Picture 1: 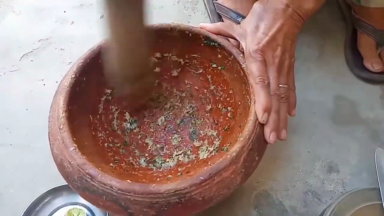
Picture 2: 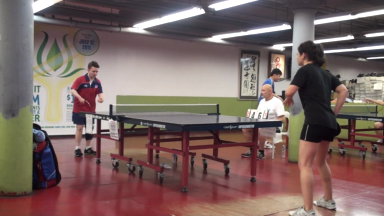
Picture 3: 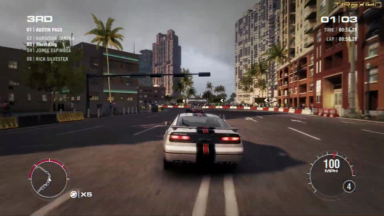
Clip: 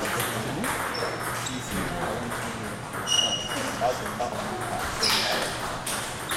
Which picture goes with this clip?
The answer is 2